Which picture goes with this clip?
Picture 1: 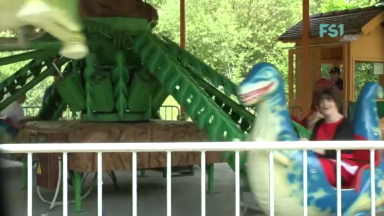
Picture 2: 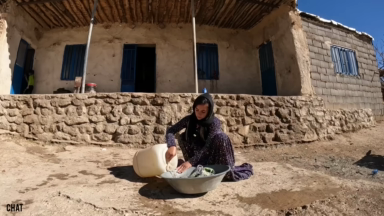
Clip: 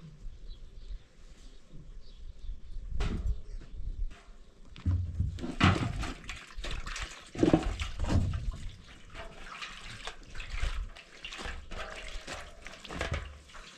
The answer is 2